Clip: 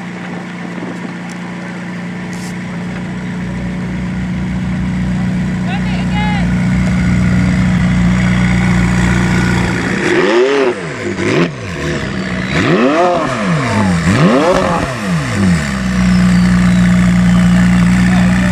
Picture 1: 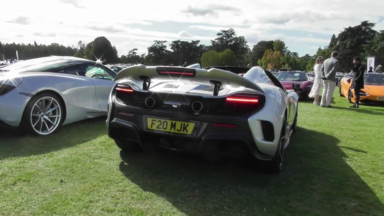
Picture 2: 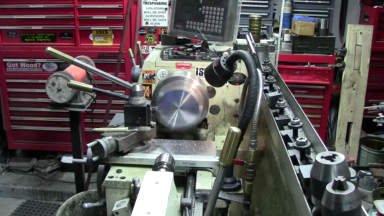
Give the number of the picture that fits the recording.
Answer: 1